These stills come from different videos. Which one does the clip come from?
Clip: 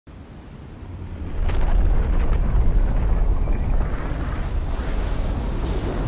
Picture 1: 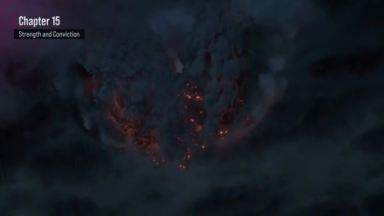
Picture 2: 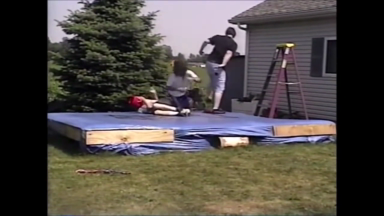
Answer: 1